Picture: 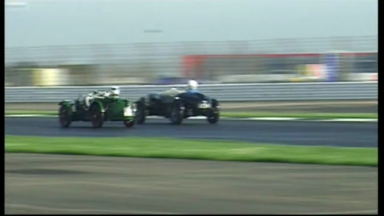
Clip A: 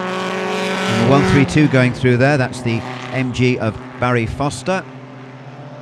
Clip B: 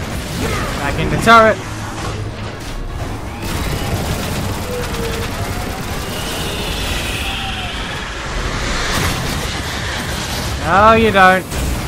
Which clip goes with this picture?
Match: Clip A